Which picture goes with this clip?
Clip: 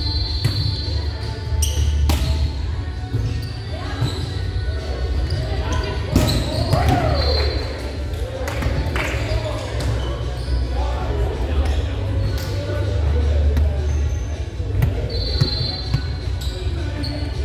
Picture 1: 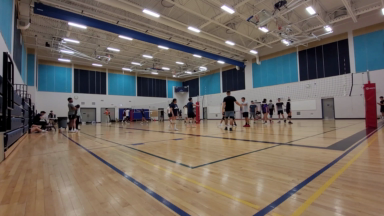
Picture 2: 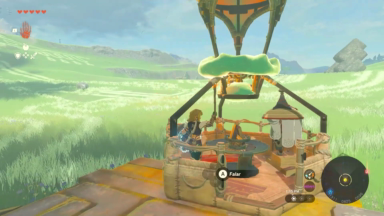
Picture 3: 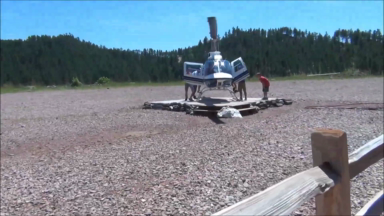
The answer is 1